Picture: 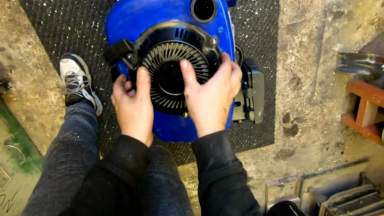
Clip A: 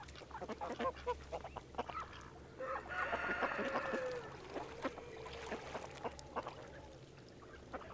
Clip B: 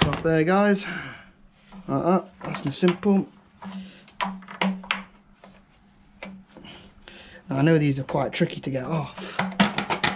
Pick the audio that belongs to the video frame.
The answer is B